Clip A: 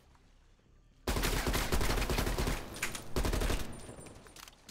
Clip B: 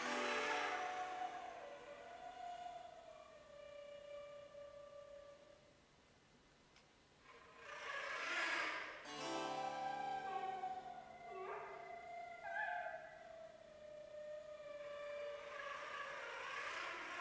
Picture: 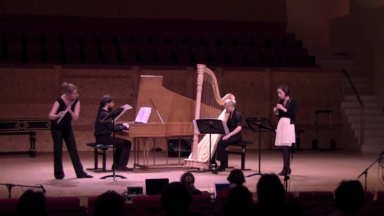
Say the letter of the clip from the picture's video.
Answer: B